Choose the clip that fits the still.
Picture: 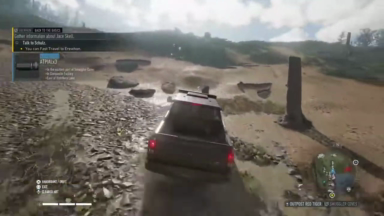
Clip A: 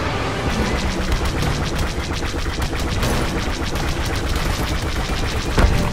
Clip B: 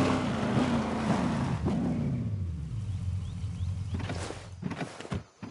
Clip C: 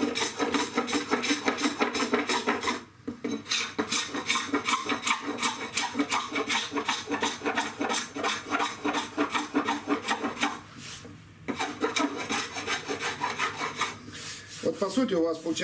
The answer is B